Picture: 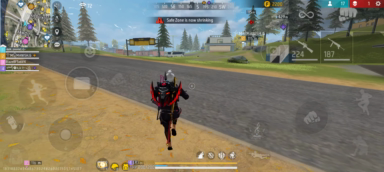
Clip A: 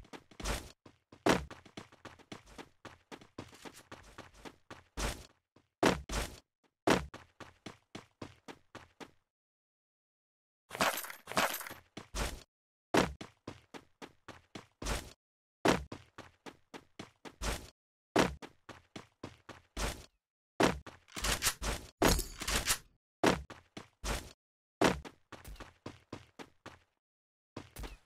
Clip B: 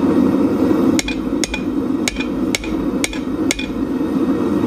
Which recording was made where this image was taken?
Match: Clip A